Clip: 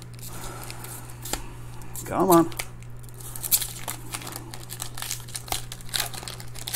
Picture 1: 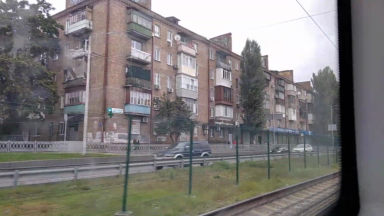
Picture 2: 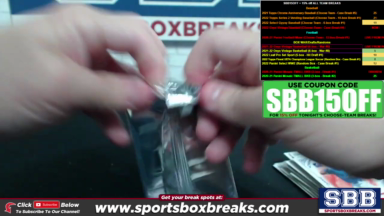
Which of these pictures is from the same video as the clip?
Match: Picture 2